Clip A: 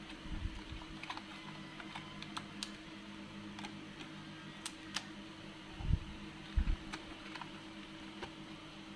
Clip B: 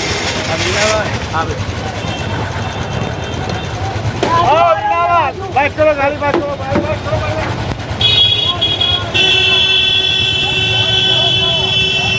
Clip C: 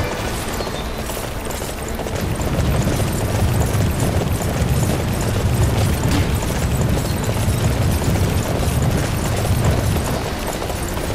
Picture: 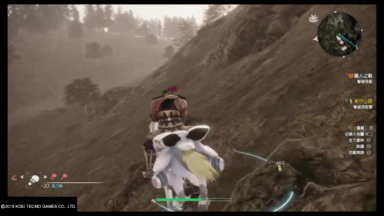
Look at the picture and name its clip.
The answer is C